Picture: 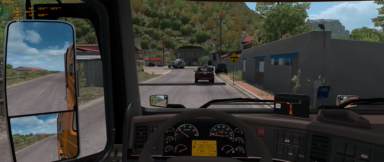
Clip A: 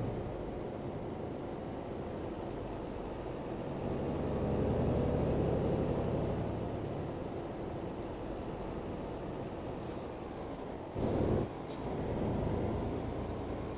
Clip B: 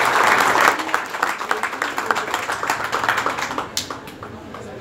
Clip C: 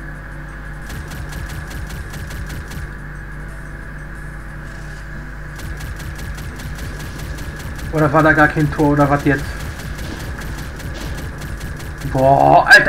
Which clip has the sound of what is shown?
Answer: A